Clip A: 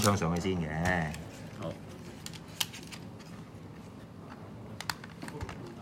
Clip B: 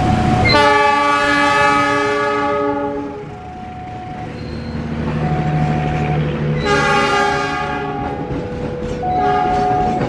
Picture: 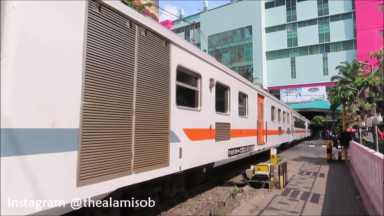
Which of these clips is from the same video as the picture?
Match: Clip B